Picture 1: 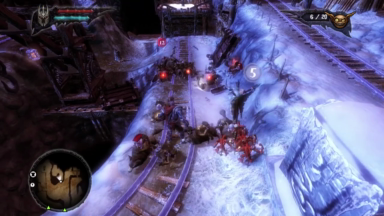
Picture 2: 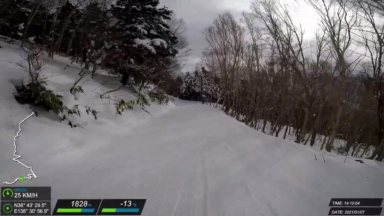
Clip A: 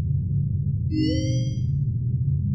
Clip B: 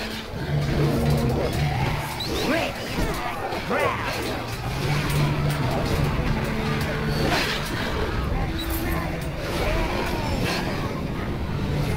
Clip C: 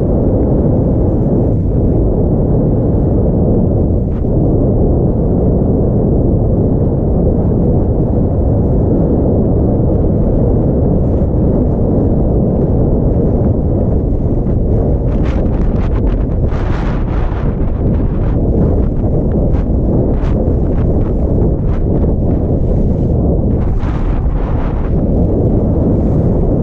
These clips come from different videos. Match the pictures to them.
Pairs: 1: B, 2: C